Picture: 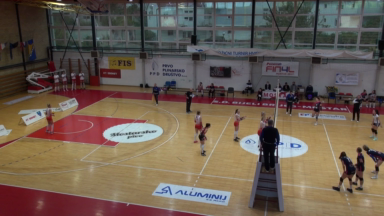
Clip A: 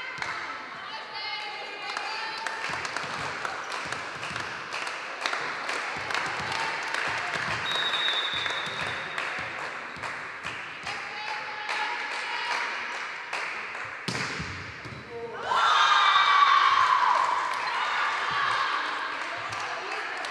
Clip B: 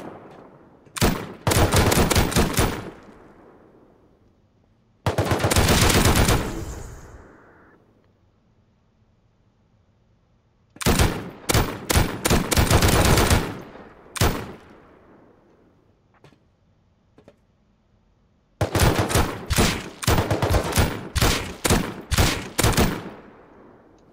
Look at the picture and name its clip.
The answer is A